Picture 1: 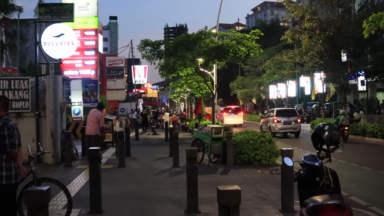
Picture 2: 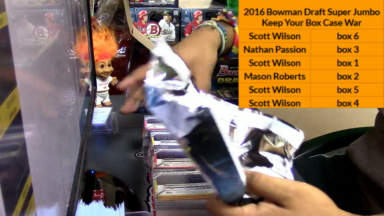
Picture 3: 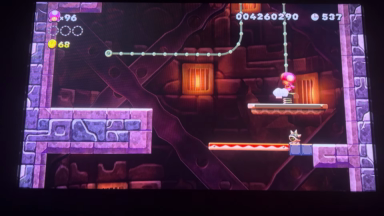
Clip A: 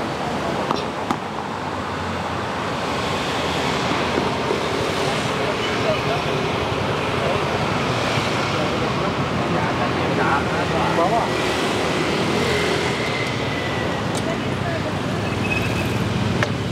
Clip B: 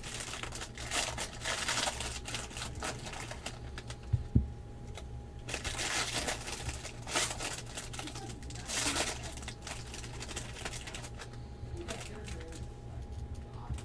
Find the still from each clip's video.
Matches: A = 1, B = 2